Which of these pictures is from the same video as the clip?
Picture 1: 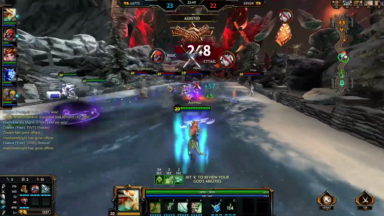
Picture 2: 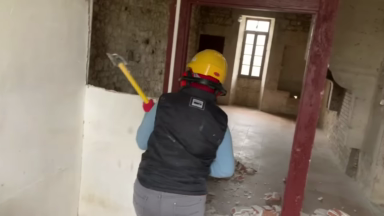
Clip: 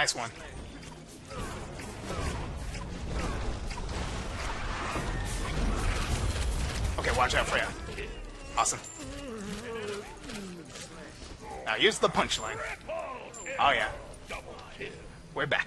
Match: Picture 1